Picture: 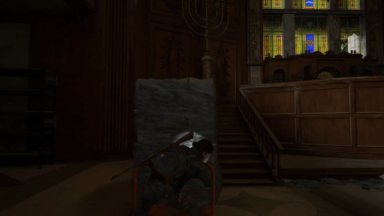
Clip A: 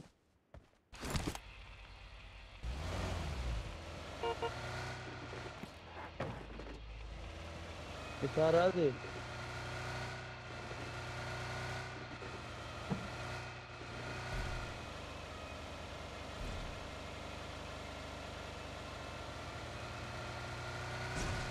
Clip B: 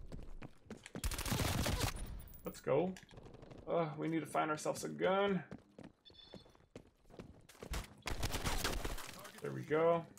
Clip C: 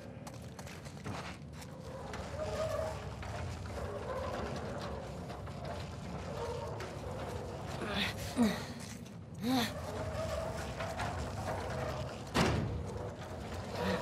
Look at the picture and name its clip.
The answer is C